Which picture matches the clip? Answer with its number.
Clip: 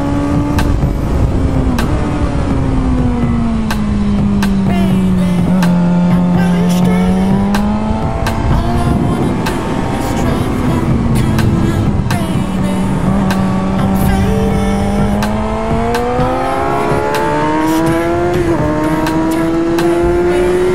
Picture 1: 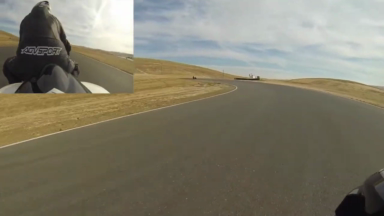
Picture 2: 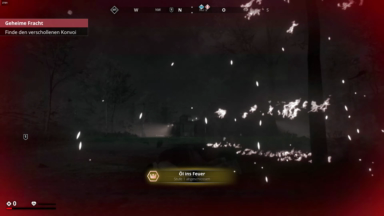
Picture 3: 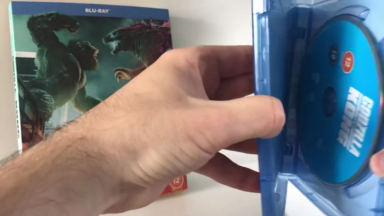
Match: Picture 1